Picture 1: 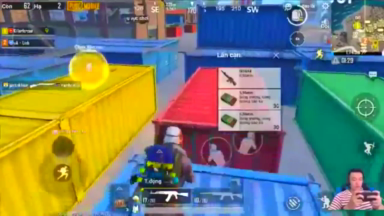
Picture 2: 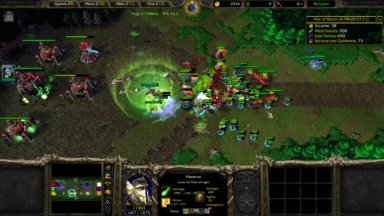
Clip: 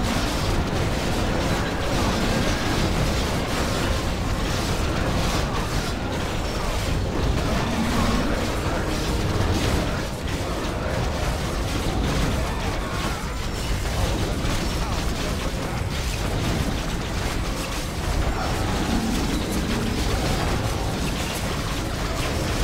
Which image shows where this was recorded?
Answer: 2